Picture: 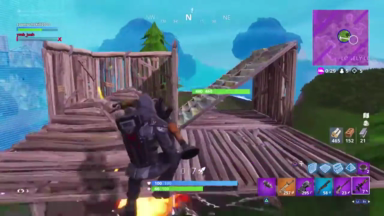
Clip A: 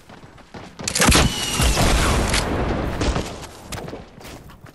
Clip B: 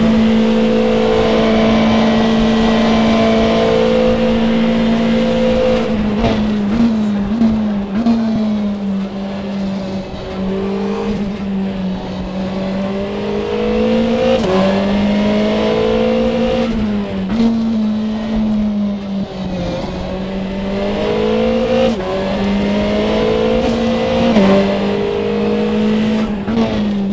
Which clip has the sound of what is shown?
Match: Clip A